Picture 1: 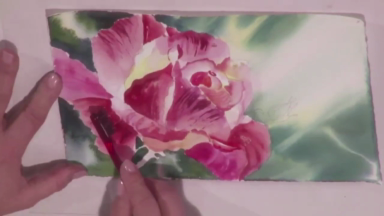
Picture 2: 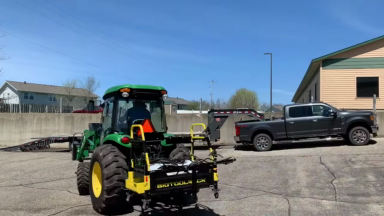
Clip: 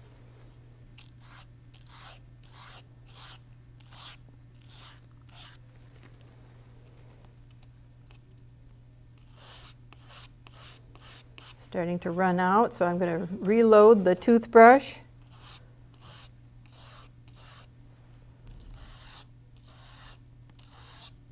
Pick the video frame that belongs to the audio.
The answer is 1